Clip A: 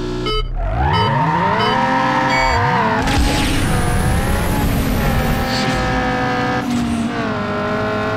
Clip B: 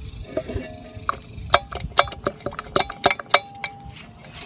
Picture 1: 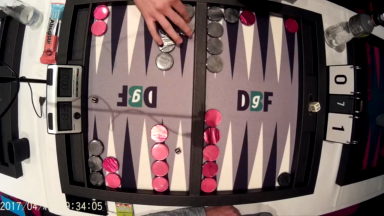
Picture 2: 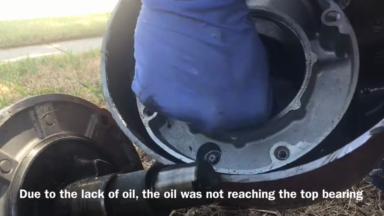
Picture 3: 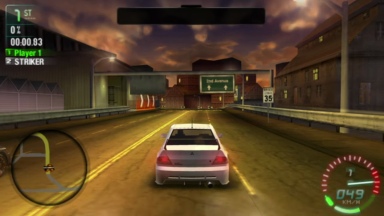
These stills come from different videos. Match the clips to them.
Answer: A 3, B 2